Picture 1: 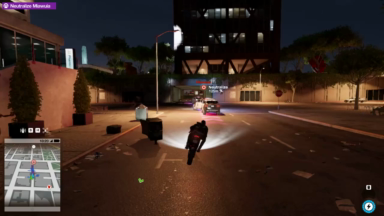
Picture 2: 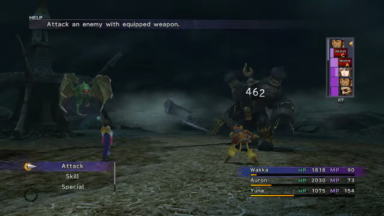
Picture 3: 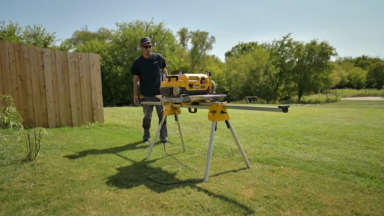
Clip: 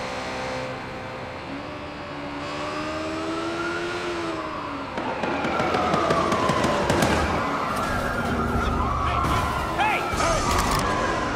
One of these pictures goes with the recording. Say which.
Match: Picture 1